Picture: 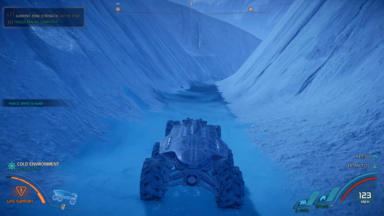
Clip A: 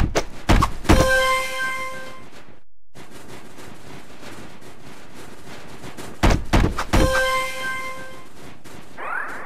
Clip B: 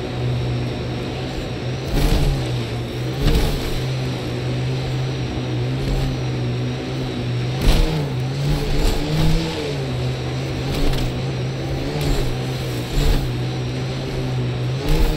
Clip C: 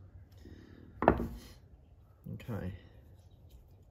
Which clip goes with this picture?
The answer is B